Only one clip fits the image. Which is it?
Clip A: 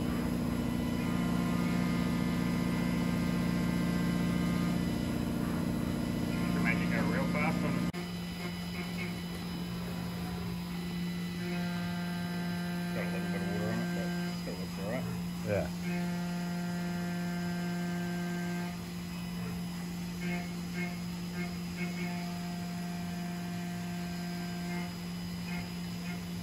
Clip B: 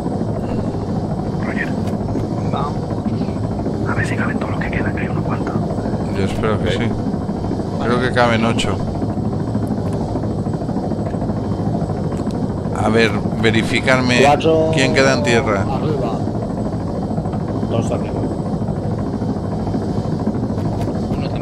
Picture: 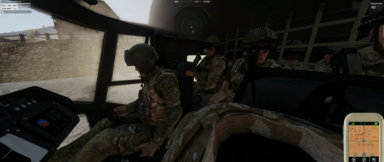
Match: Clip B